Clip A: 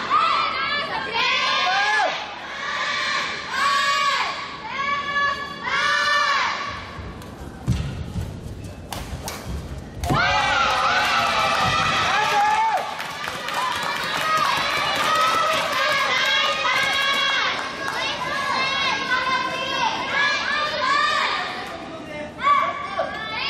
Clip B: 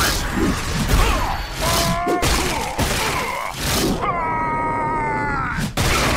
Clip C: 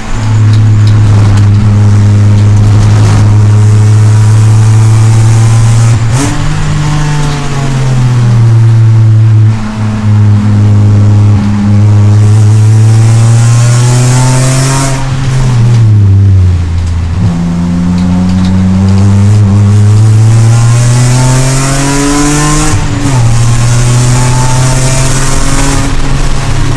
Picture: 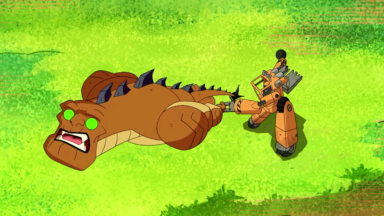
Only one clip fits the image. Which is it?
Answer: B